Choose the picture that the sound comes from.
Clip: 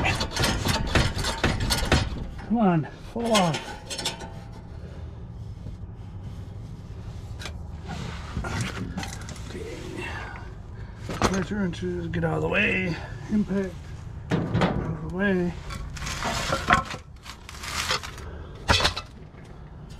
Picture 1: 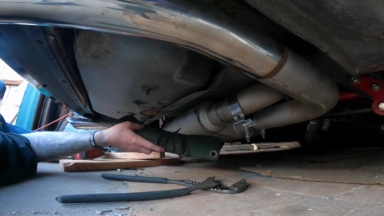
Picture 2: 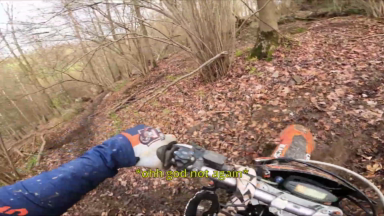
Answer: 1